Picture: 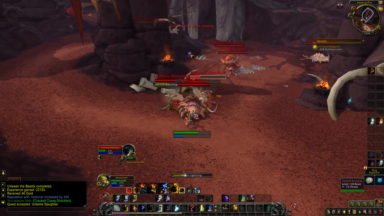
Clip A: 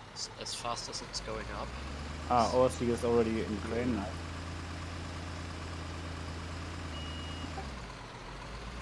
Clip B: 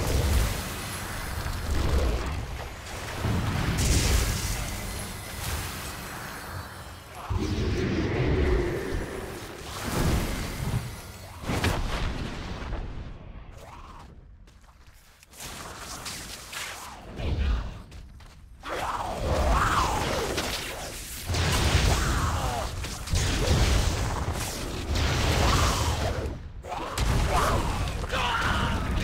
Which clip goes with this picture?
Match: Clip B